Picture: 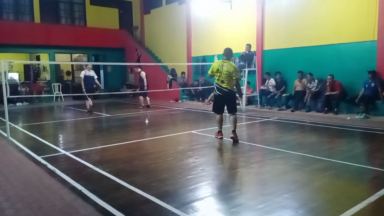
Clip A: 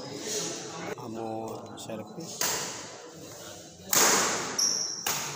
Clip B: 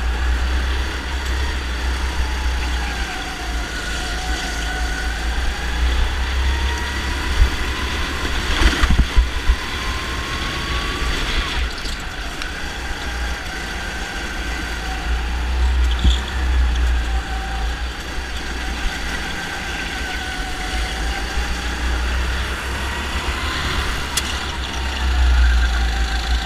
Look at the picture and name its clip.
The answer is A